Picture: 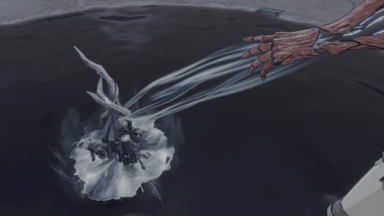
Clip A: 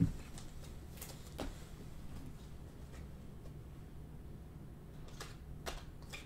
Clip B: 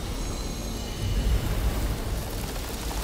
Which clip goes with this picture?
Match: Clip B